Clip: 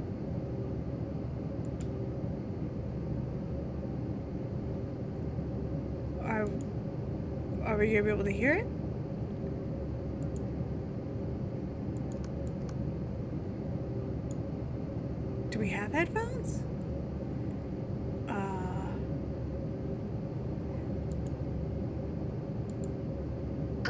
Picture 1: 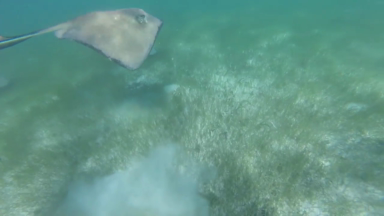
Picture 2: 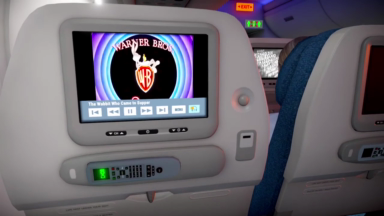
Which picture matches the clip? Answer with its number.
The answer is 2